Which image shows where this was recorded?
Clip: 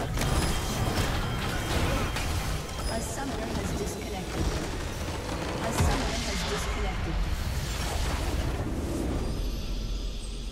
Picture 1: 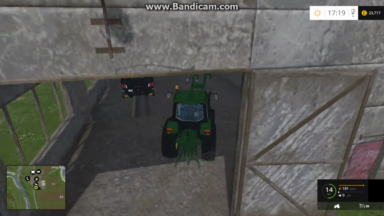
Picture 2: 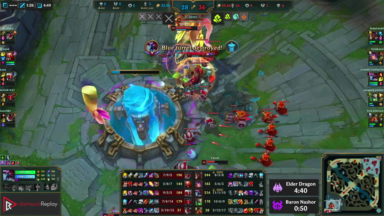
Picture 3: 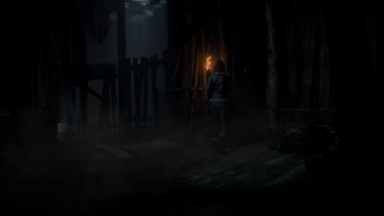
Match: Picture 2